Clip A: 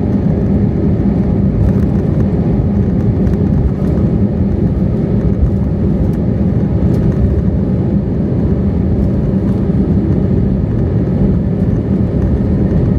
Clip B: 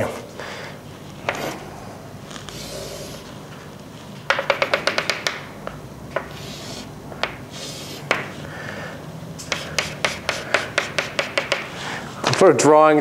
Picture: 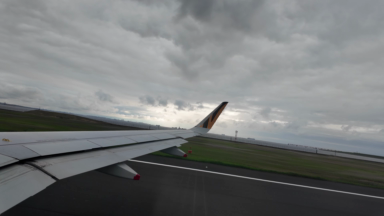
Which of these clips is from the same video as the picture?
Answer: A